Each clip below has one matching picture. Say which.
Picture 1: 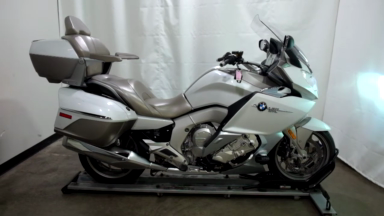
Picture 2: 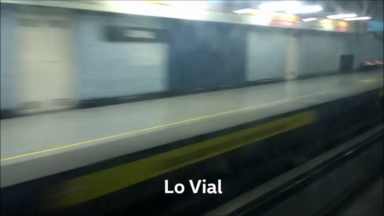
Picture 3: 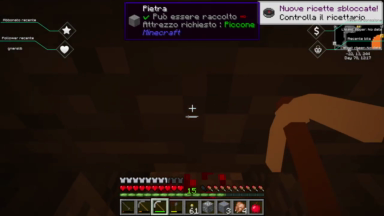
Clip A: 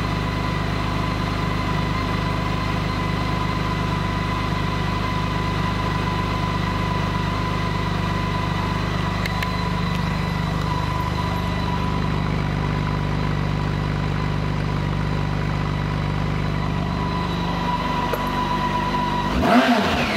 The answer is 1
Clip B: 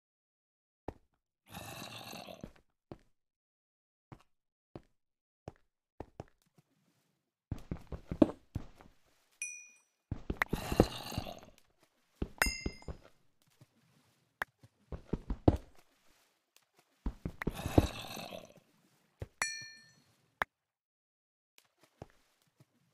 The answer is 3